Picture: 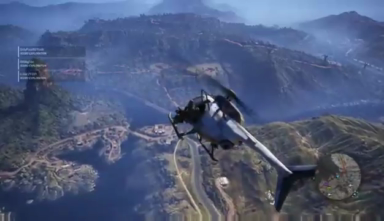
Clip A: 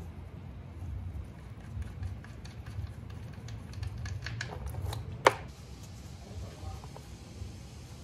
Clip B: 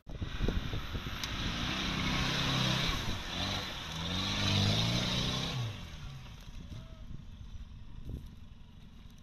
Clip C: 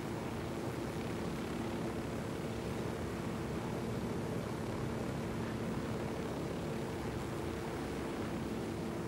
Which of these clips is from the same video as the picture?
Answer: C